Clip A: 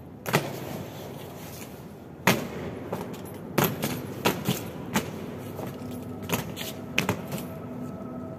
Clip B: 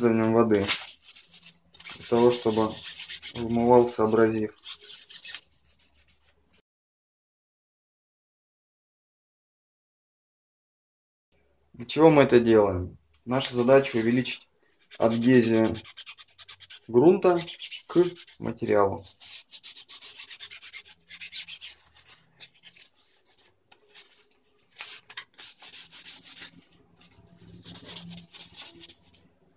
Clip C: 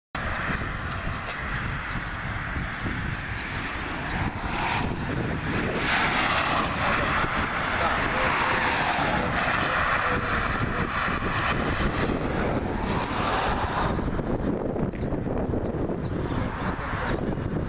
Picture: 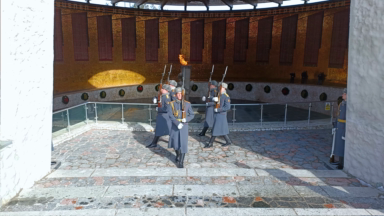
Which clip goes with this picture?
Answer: A